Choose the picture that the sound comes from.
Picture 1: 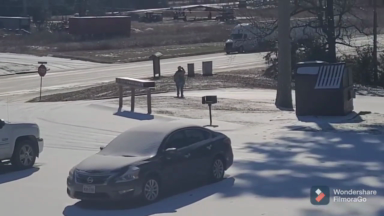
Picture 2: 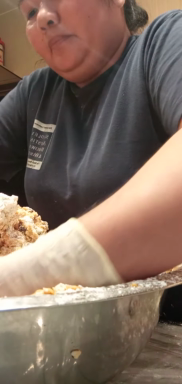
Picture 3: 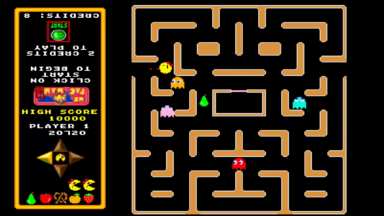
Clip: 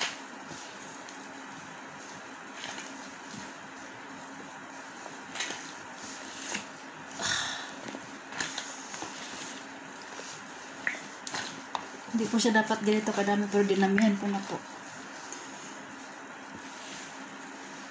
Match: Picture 2